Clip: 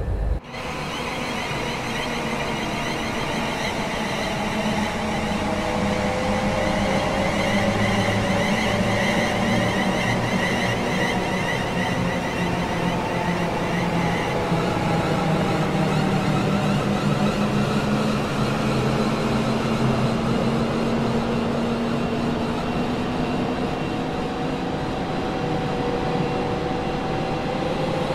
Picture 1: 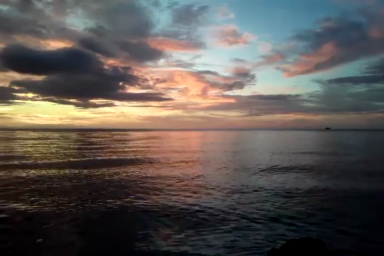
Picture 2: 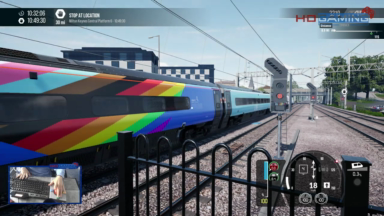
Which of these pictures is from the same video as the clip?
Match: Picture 2